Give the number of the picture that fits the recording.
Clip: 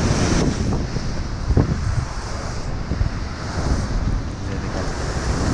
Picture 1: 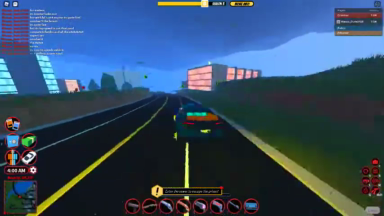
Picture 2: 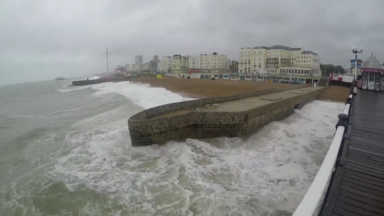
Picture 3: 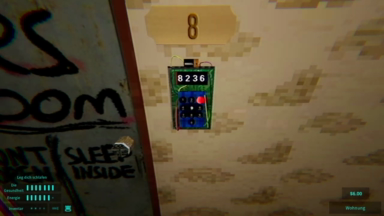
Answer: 2